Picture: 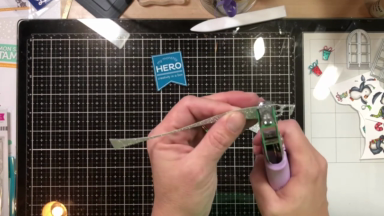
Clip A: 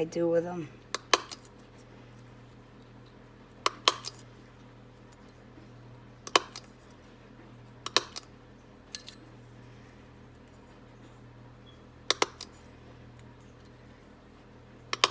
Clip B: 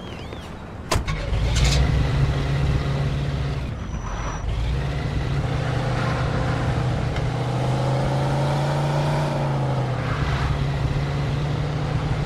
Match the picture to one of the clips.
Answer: A